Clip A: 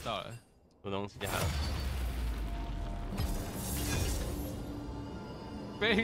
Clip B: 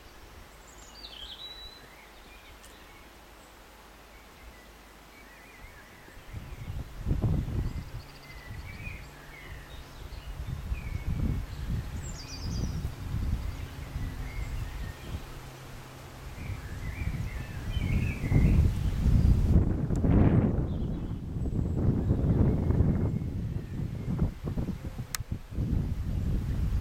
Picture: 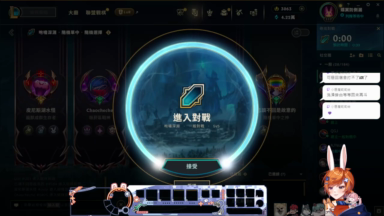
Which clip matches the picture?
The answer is A